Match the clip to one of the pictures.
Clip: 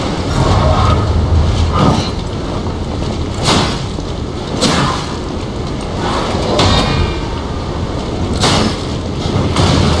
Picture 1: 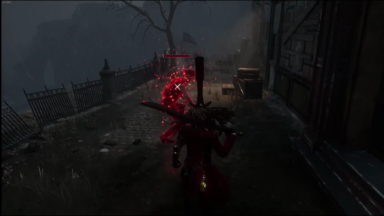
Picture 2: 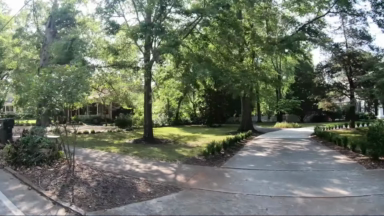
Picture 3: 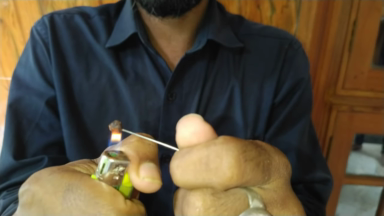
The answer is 1